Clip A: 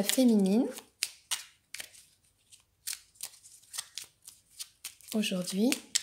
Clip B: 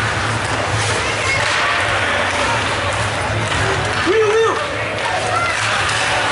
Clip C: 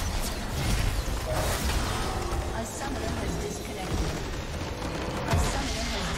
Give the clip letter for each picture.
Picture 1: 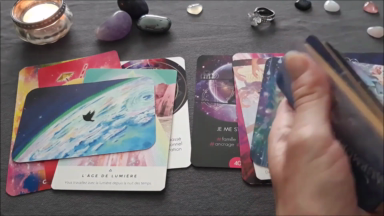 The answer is A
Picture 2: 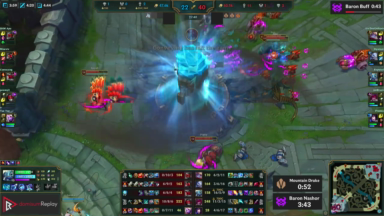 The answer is C